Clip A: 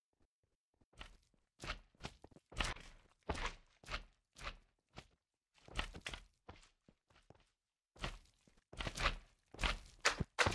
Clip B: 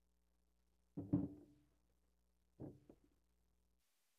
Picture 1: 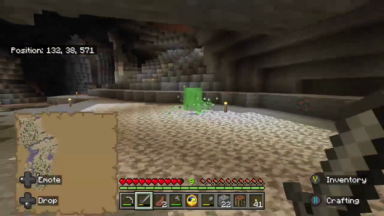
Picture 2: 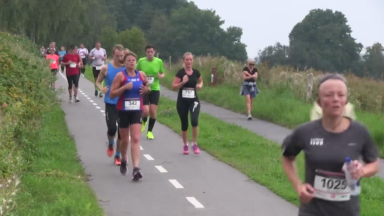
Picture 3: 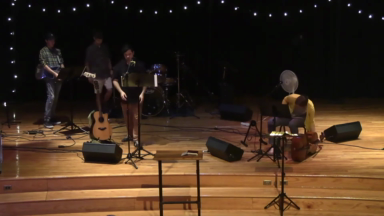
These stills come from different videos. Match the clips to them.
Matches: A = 1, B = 3